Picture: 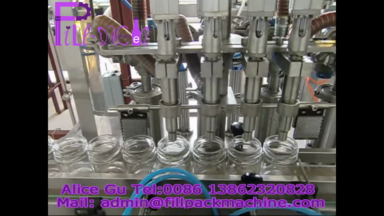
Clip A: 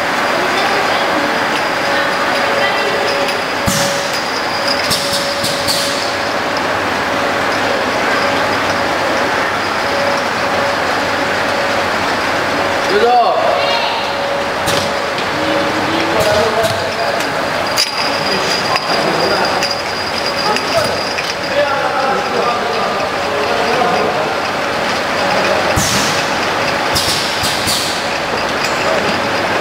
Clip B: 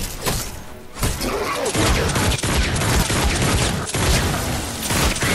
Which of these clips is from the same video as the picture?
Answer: A